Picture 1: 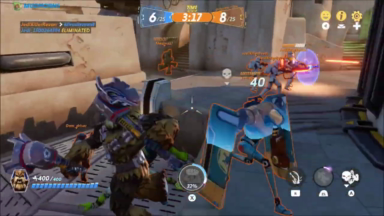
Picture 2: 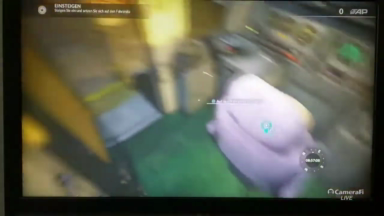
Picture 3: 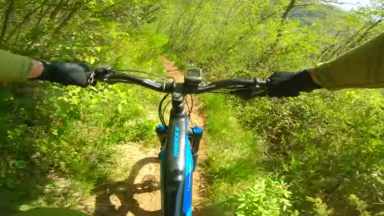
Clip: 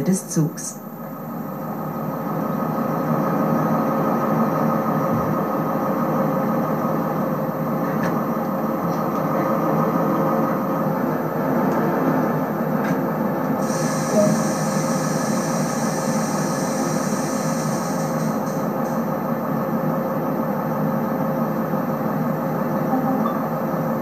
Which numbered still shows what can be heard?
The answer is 2